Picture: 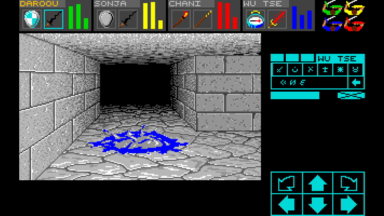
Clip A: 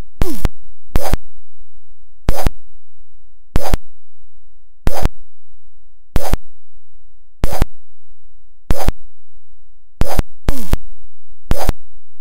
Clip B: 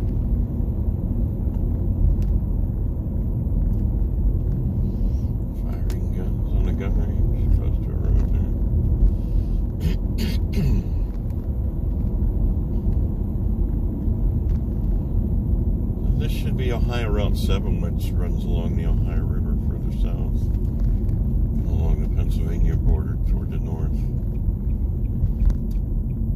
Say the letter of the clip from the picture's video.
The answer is A